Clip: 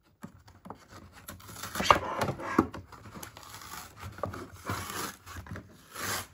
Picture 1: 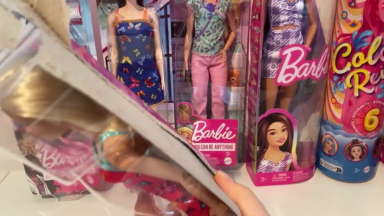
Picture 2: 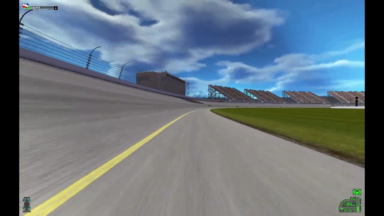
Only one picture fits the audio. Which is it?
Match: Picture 1